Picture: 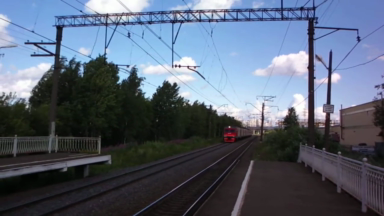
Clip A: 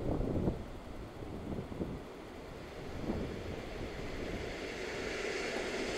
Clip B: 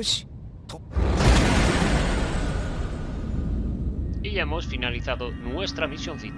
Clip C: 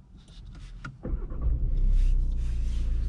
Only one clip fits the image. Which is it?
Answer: A